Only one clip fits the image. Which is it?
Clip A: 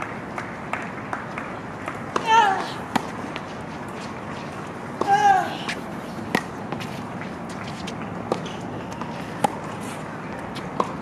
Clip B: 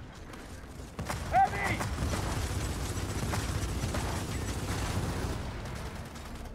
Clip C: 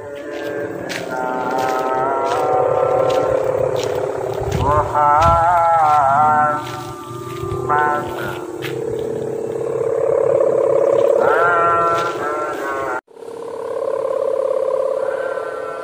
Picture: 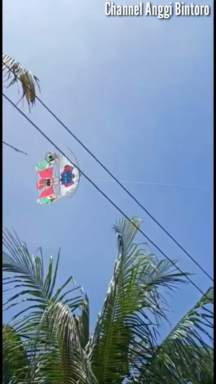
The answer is C